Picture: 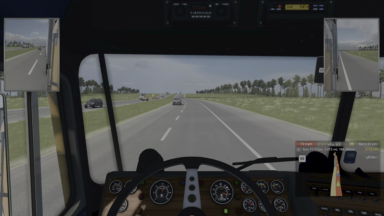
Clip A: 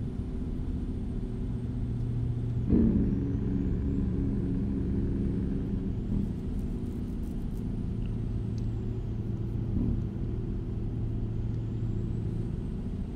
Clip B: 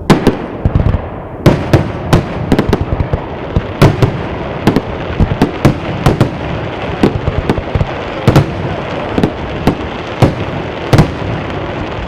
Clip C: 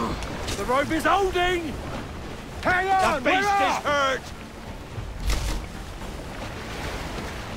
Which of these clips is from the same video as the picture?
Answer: A